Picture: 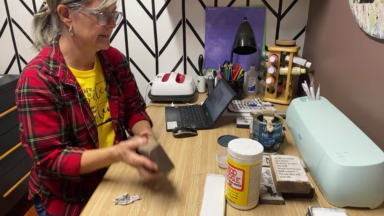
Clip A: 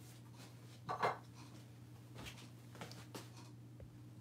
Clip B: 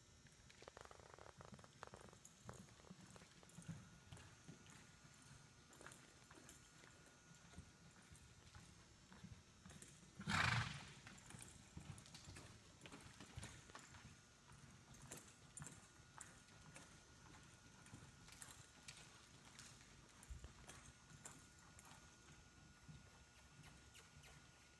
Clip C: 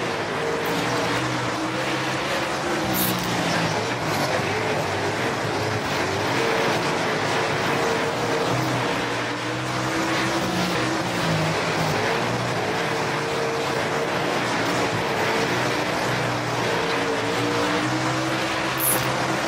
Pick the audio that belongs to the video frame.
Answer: A